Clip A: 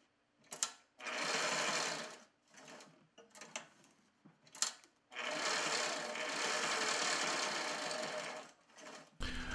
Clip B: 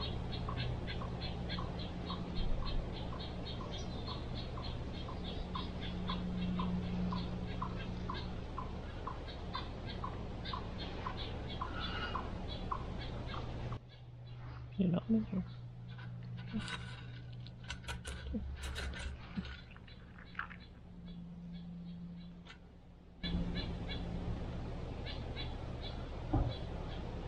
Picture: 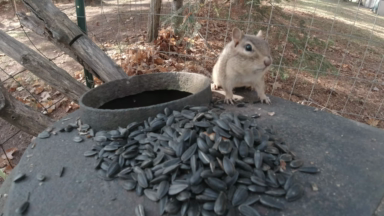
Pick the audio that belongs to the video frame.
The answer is B